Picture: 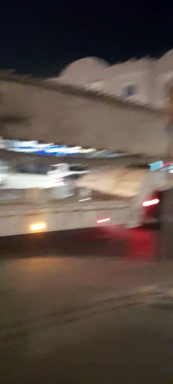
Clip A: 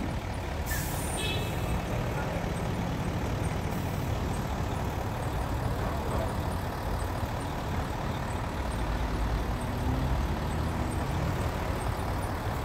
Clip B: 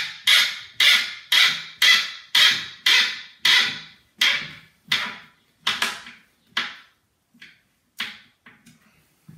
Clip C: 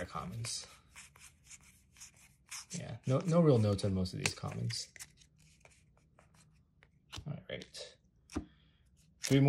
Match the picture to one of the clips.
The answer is A